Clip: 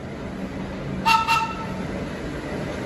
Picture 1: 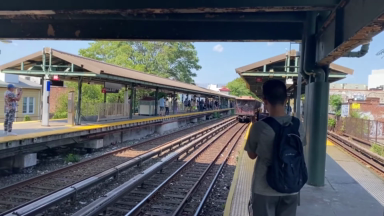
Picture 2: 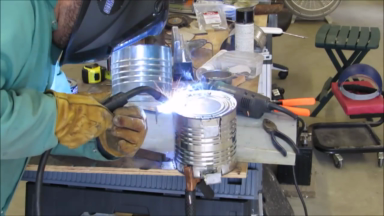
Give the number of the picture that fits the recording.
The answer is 1